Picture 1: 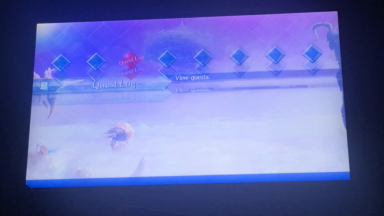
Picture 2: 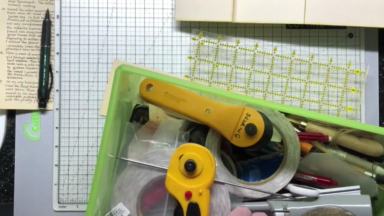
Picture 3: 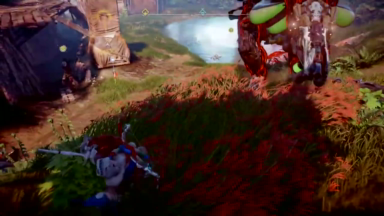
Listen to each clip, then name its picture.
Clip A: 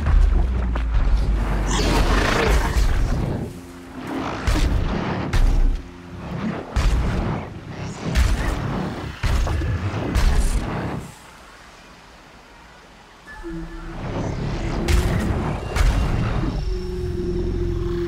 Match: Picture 3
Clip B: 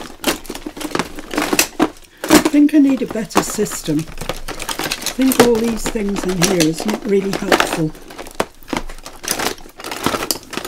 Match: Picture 2